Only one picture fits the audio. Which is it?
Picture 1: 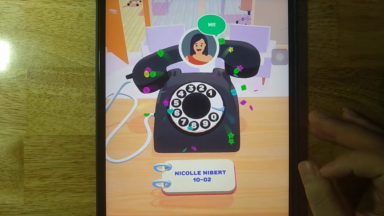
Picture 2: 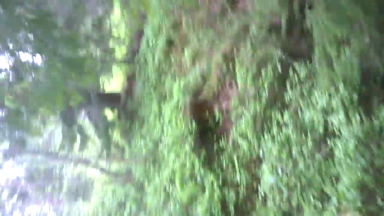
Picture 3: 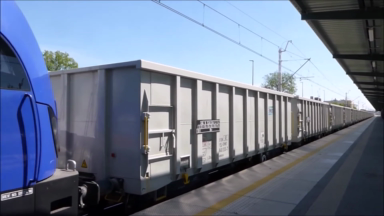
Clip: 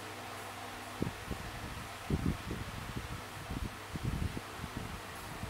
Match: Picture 1